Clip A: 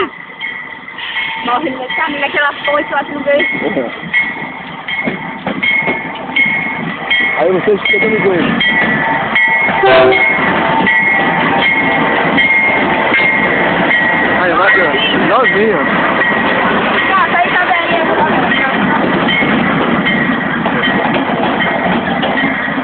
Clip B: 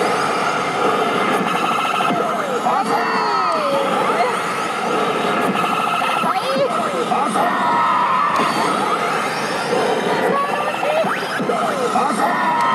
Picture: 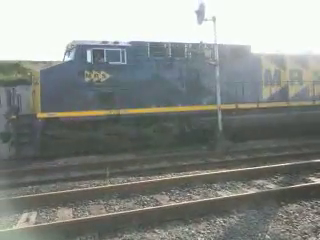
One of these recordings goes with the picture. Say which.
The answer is A